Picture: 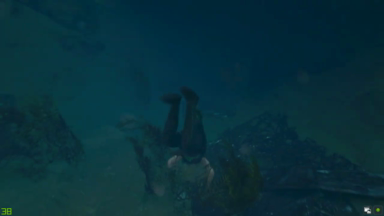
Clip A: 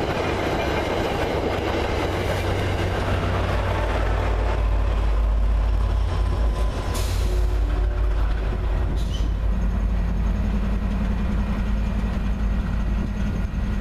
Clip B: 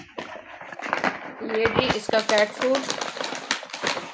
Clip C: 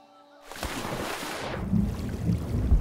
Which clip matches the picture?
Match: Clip C